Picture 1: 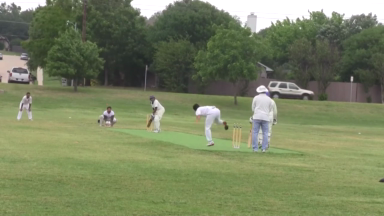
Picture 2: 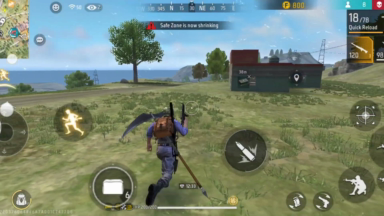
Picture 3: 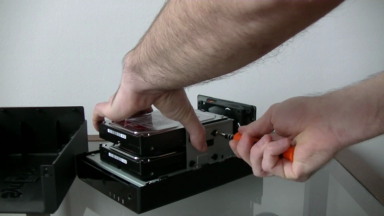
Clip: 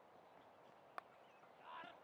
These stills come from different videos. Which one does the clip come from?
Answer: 1